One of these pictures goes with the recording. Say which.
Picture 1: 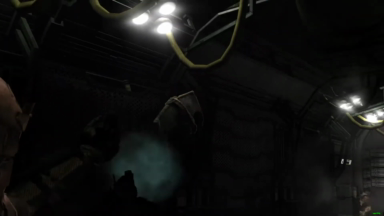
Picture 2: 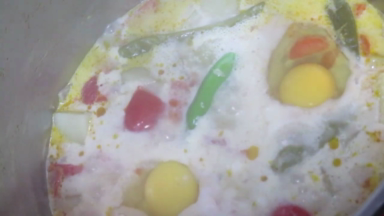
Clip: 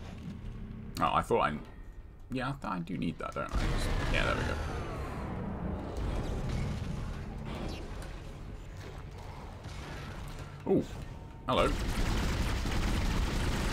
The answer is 1